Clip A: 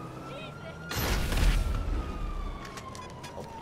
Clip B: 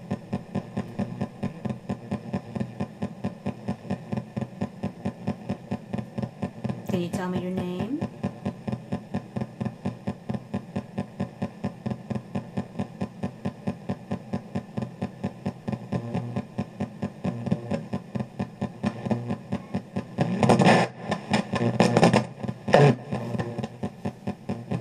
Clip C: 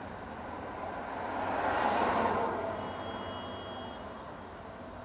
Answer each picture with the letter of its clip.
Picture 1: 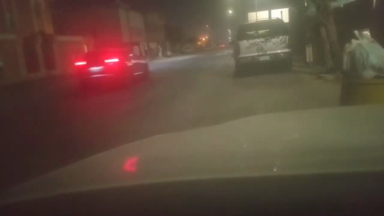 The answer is C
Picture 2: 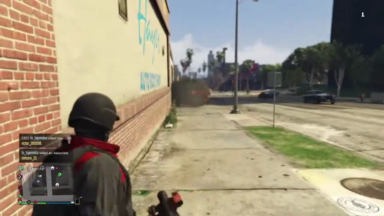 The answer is A